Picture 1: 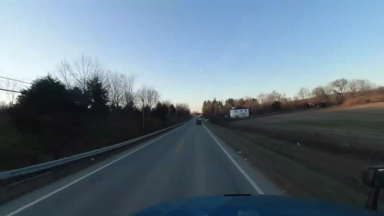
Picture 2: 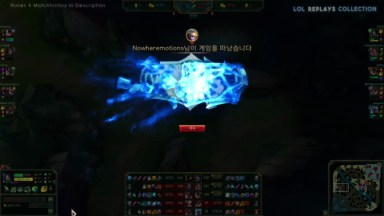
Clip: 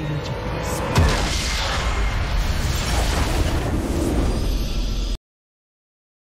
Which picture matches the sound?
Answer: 2